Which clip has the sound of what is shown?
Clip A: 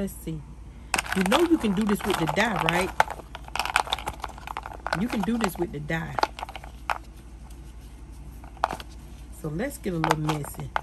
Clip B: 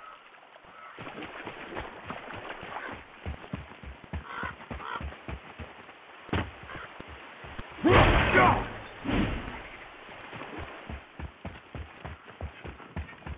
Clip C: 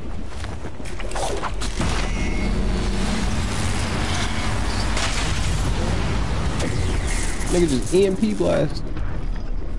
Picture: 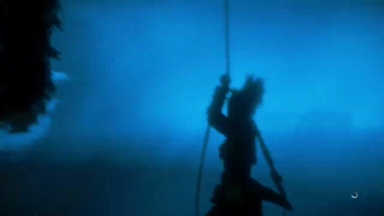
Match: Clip C